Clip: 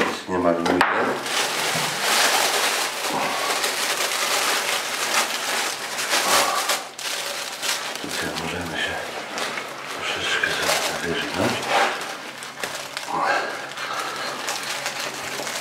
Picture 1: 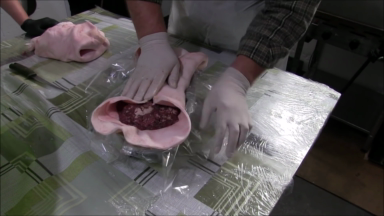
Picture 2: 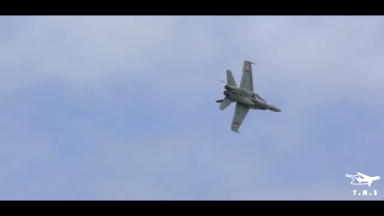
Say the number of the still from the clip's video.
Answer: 1